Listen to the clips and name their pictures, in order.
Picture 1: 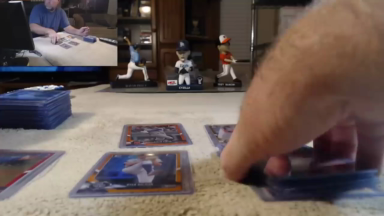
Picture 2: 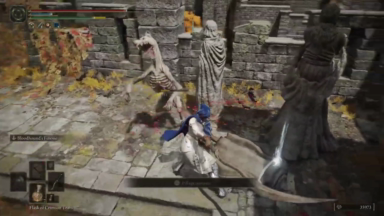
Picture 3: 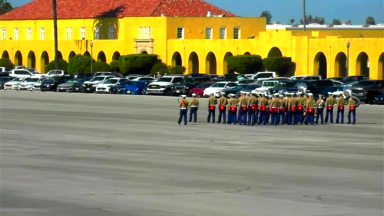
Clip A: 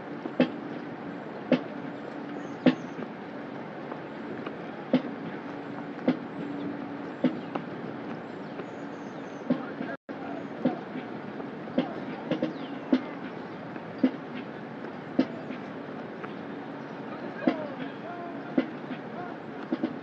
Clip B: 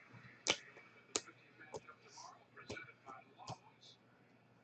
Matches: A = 3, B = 1